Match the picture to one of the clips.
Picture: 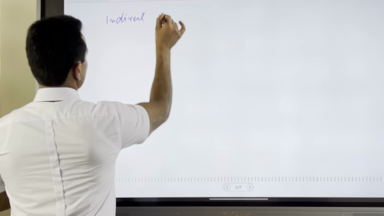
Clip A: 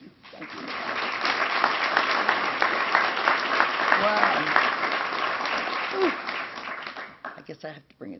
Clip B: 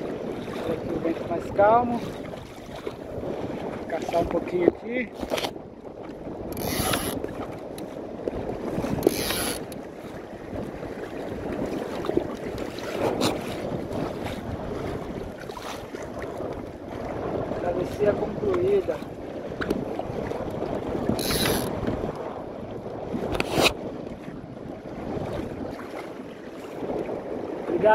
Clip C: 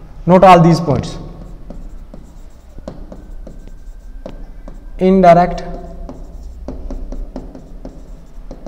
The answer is C